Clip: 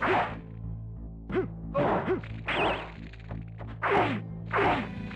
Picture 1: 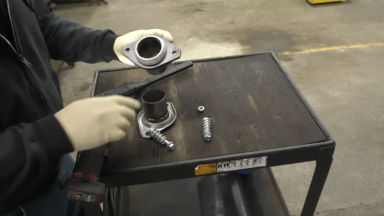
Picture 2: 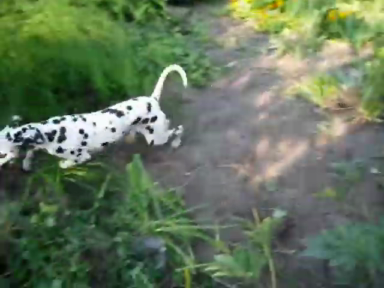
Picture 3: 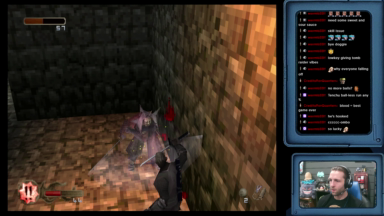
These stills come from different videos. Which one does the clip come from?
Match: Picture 3